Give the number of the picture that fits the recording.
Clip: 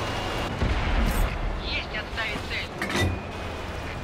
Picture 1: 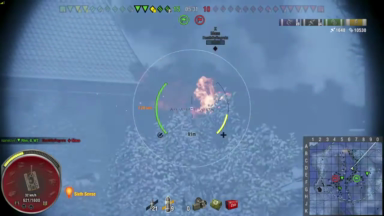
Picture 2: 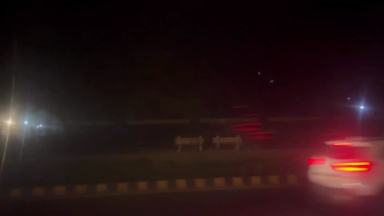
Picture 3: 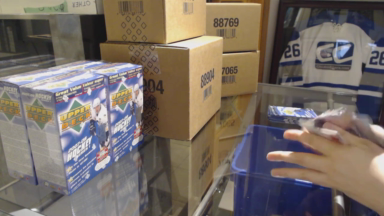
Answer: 1